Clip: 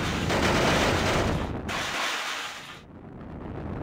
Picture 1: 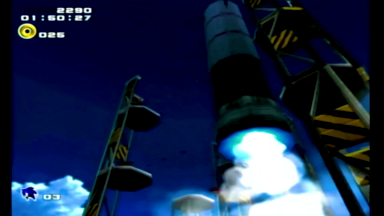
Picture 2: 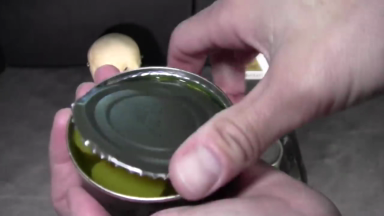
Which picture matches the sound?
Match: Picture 1